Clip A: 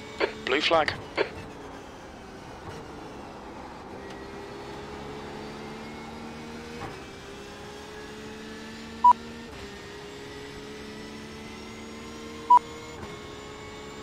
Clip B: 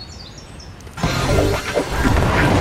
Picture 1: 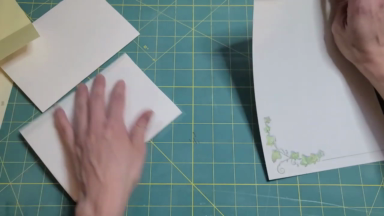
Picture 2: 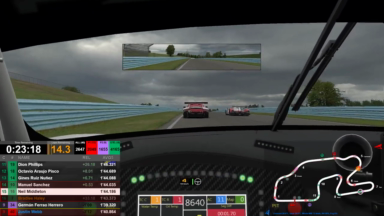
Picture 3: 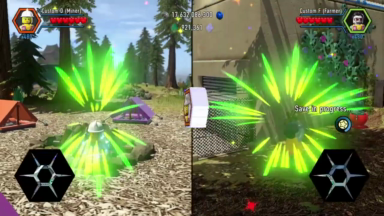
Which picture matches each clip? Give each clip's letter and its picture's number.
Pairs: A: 2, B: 3